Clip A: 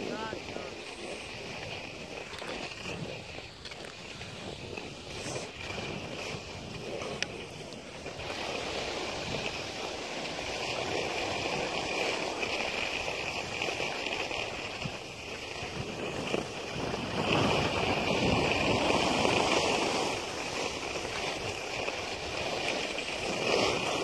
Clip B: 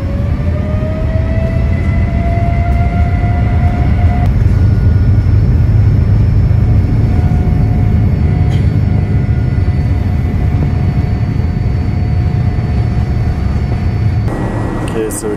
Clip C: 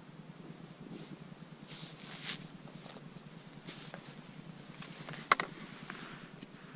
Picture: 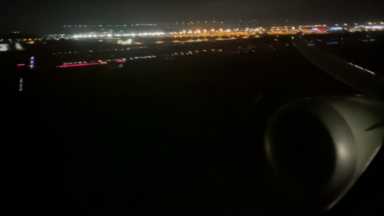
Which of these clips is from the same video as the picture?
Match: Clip B